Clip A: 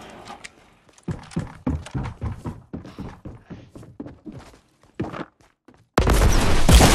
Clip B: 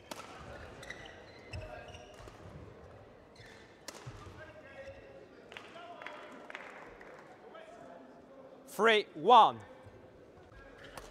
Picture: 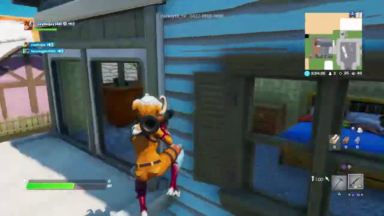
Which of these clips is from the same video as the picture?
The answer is A